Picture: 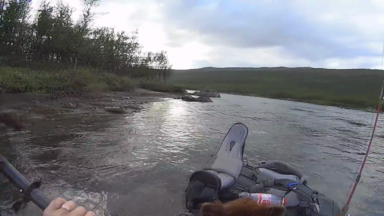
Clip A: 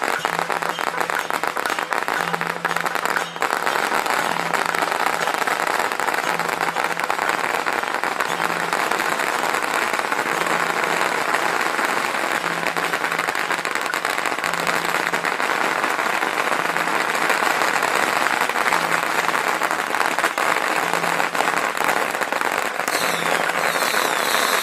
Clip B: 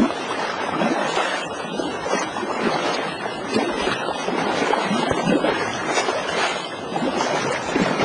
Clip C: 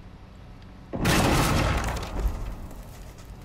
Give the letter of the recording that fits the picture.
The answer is B